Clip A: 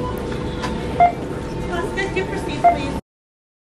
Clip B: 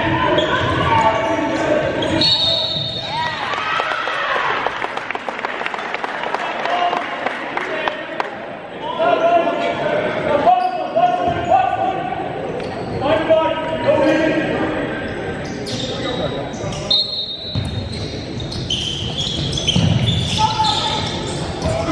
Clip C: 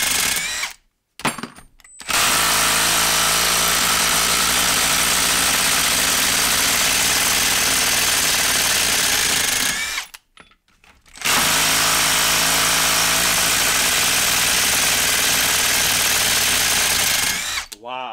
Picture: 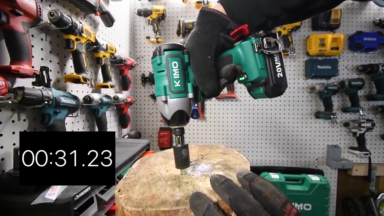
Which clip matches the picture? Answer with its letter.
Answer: C